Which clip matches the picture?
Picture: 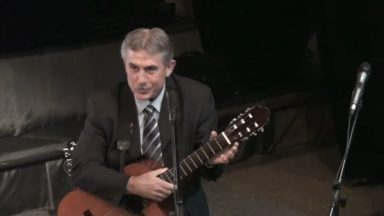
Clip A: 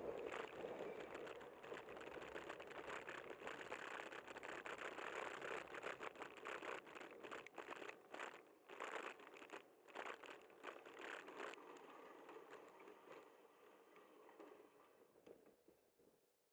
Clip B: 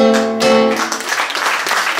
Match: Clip B